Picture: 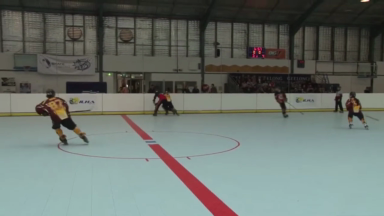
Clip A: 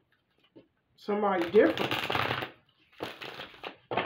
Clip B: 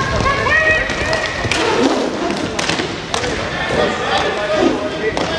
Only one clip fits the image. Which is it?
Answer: B